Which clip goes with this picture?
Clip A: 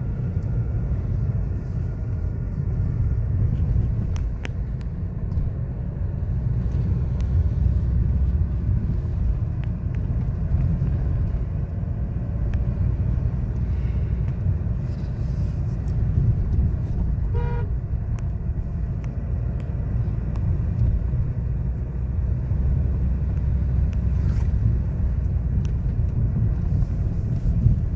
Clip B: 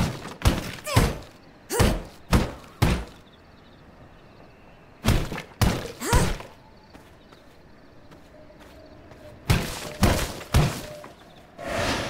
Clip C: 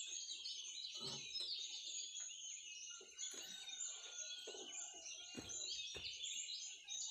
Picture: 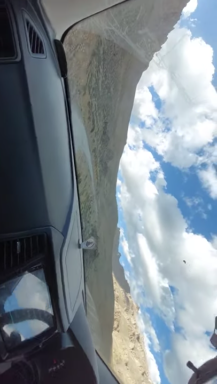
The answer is A